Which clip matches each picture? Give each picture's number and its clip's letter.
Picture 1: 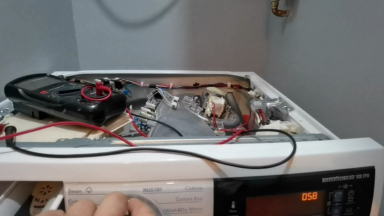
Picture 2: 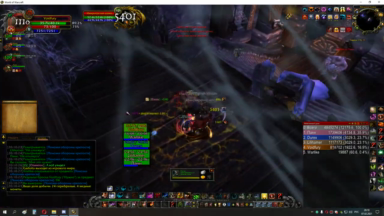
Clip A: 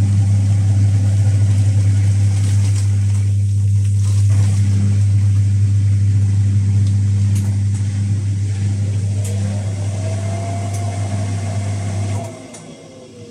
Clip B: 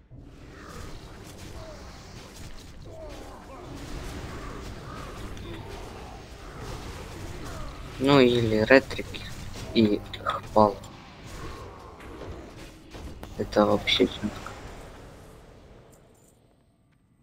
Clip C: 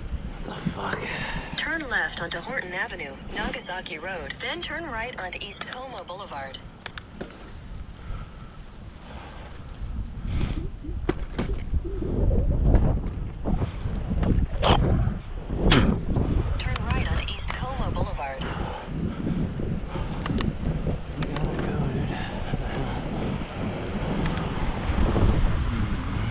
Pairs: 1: A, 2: B